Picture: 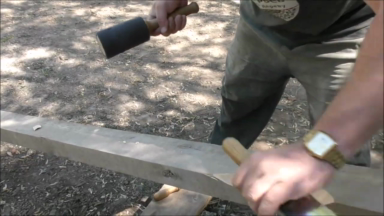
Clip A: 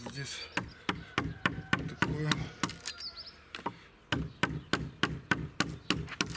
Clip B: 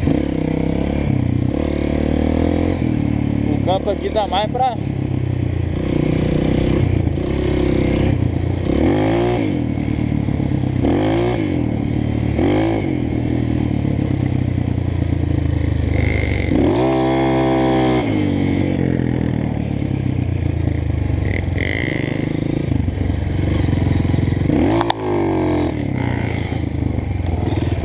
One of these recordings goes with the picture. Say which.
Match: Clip A